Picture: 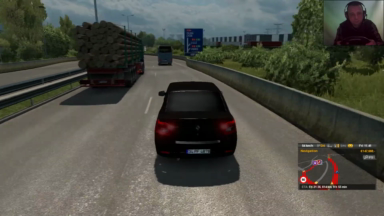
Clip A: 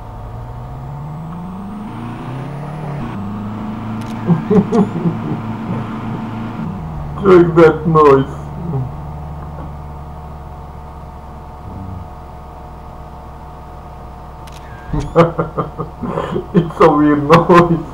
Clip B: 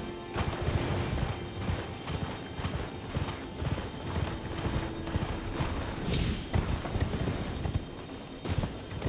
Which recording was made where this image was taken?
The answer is A